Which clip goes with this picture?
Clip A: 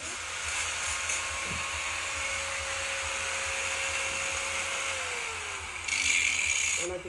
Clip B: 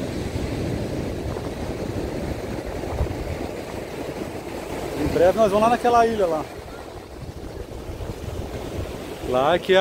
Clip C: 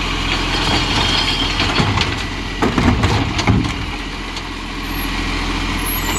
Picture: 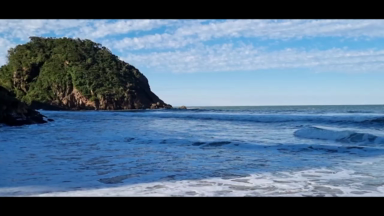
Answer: B